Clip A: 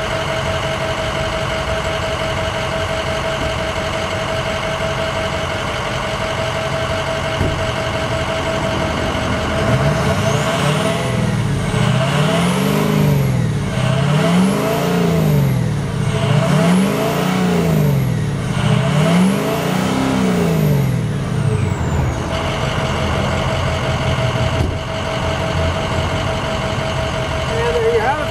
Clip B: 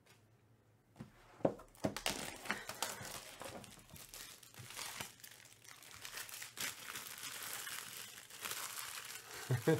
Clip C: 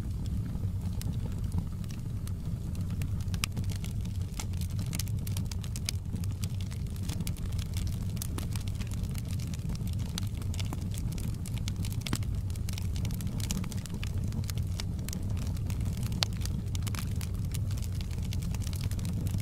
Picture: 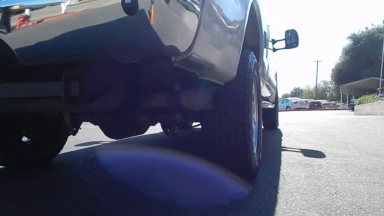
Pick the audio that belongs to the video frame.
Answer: A